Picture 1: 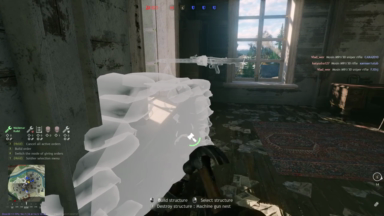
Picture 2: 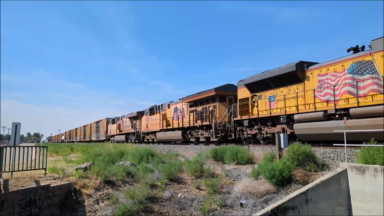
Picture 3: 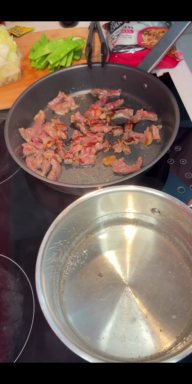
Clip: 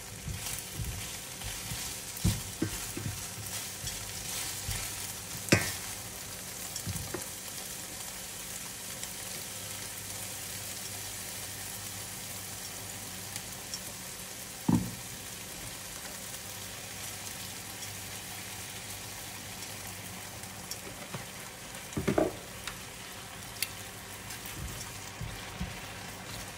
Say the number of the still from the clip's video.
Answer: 3